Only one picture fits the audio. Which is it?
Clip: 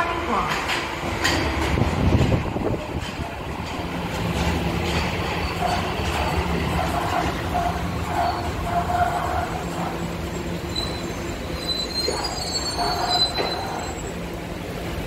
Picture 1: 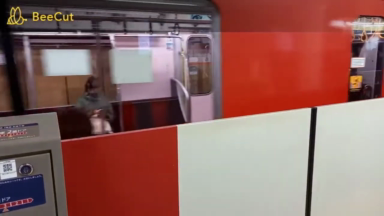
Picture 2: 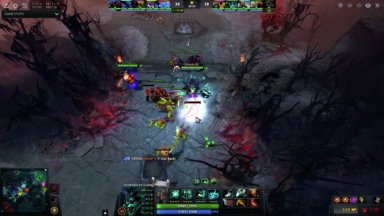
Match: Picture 1